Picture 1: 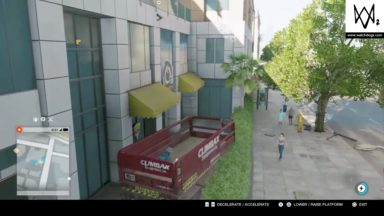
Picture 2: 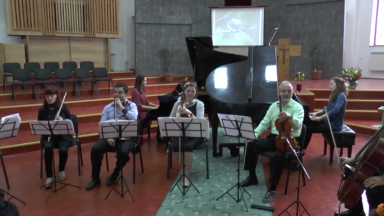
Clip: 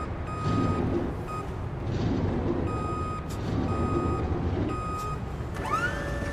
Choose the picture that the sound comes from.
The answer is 1